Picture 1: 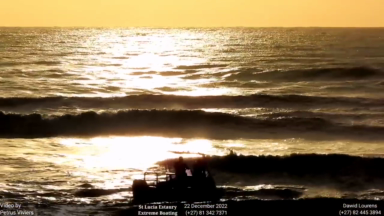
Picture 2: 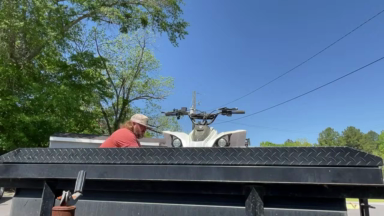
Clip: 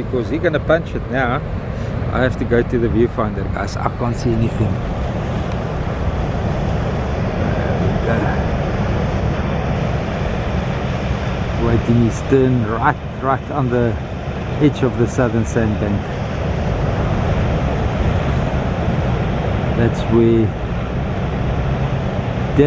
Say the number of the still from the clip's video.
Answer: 1